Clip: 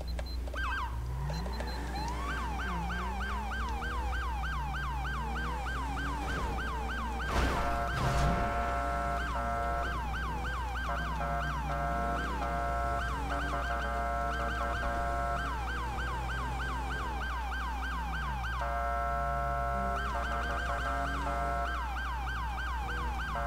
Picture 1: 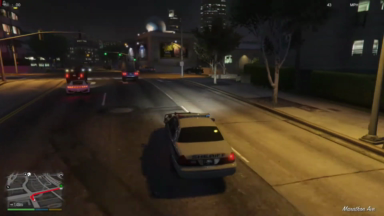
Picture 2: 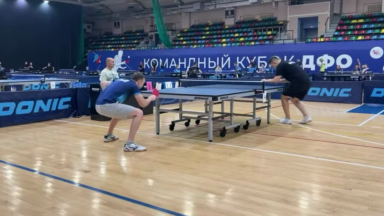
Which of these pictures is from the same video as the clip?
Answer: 1